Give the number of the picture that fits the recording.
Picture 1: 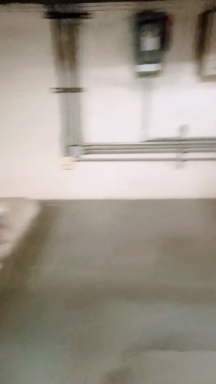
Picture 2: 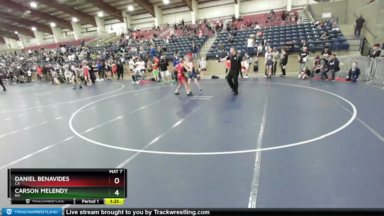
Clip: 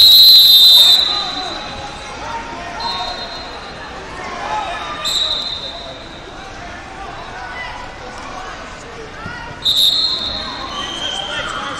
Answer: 2